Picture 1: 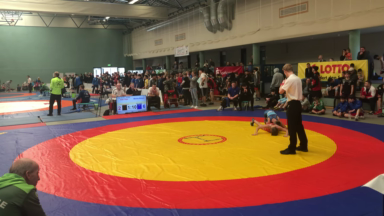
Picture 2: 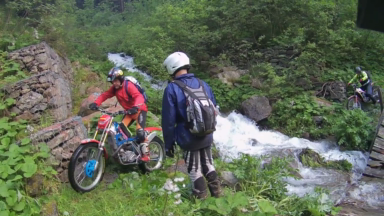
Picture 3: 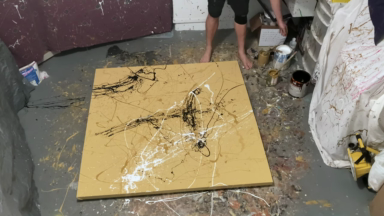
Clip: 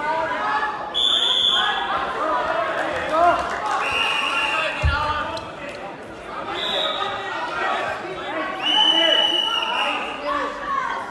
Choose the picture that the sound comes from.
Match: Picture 1